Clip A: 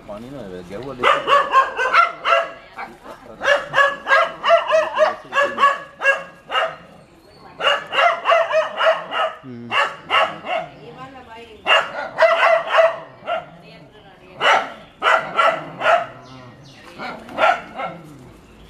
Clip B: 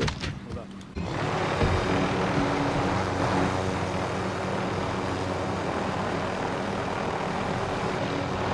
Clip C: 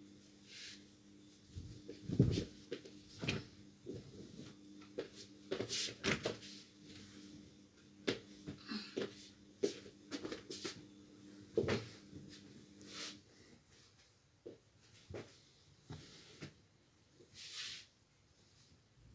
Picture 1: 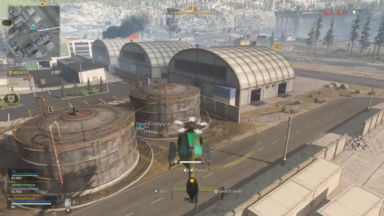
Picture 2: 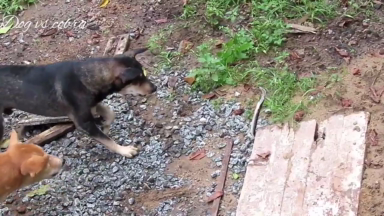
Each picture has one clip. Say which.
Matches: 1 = B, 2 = A